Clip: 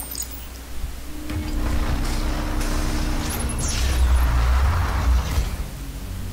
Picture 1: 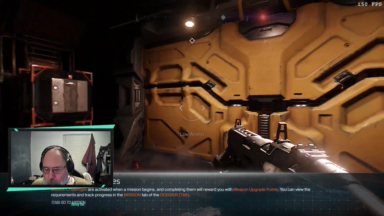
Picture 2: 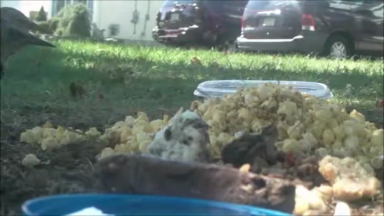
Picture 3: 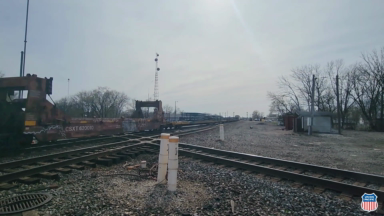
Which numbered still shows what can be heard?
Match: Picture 1